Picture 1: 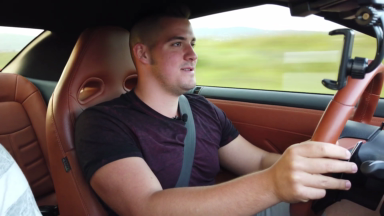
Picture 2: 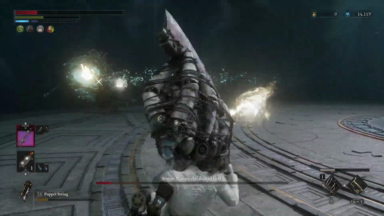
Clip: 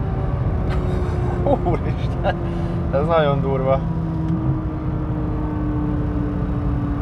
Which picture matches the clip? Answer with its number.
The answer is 1